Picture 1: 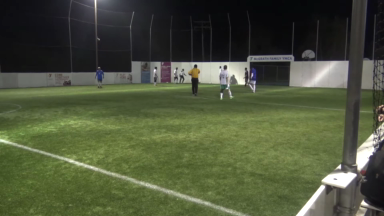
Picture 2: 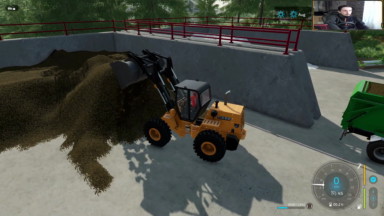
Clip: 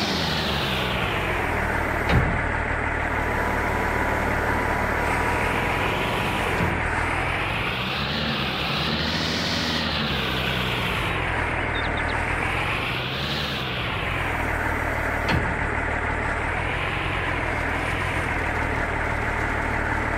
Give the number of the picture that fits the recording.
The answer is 2